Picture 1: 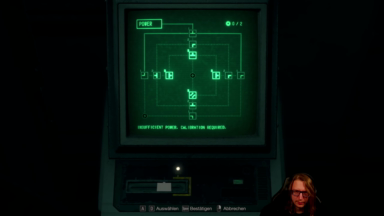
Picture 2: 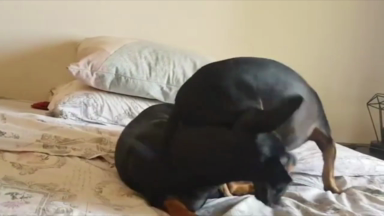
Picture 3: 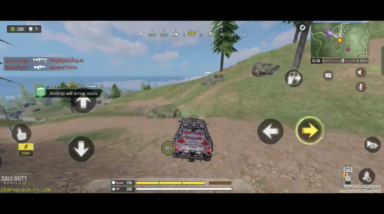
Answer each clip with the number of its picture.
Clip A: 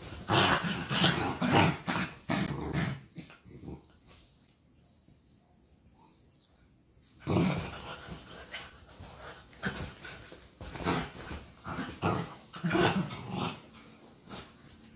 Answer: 2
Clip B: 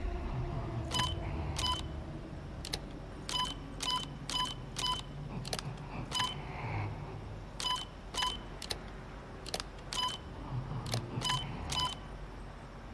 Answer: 1